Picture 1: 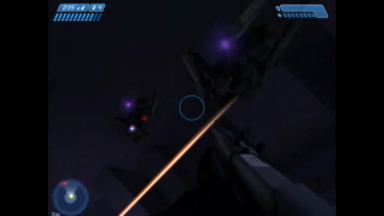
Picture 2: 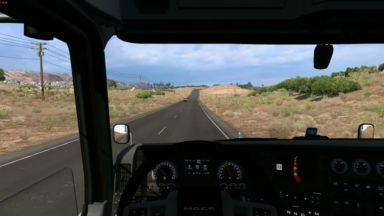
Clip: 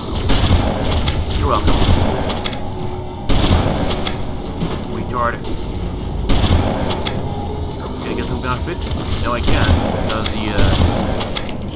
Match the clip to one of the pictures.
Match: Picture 1